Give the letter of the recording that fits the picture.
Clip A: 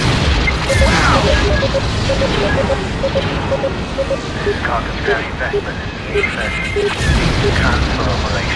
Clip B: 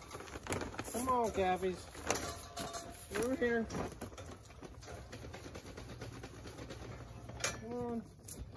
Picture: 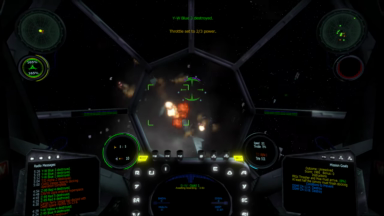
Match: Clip A